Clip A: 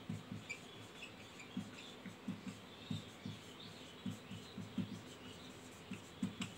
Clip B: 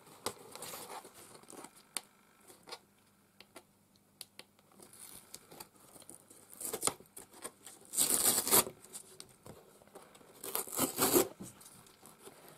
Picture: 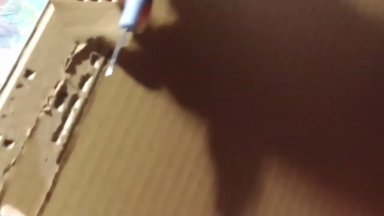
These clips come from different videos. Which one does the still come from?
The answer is B